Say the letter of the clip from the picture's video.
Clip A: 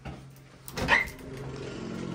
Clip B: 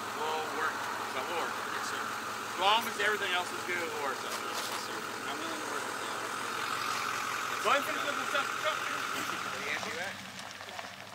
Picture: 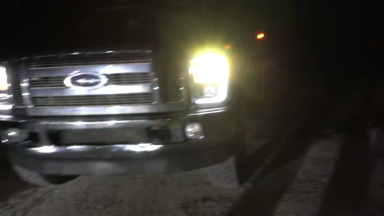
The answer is B